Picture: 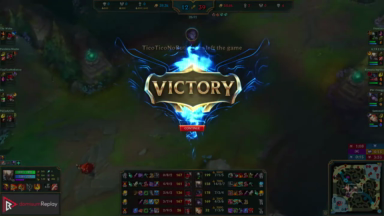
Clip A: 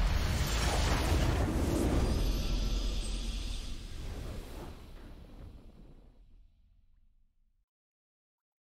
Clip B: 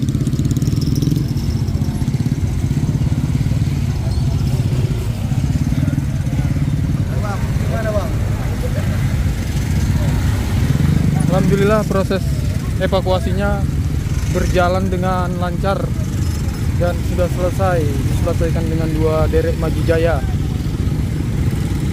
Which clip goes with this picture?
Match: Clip A